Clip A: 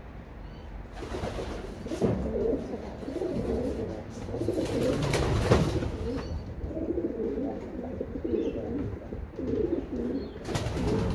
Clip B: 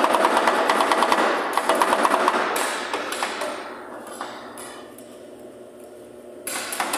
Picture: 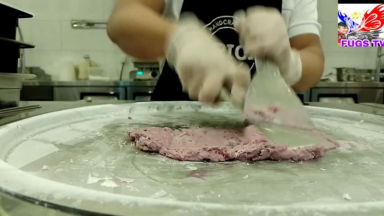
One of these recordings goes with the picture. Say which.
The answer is B